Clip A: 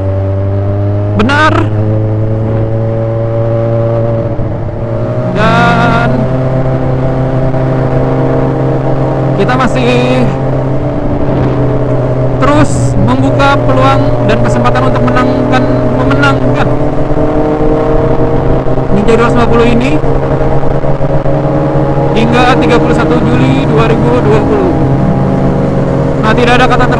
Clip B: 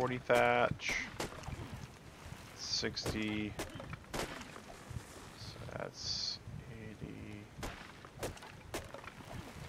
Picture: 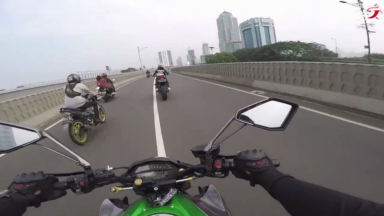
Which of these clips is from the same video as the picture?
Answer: A